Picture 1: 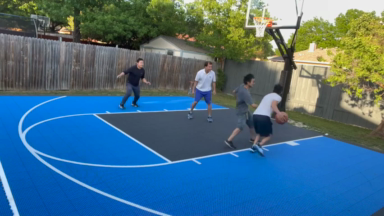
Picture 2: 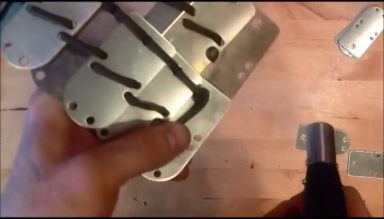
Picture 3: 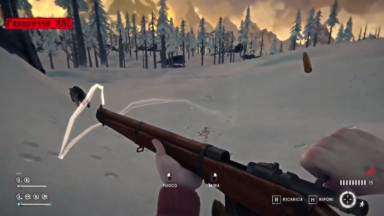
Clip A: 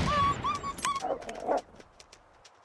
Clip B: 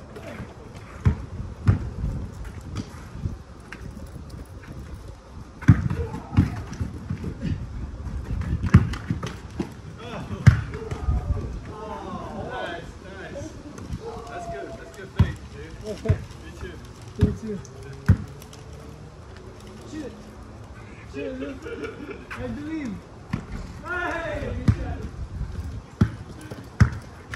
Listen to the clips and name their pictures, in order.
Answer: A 3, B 1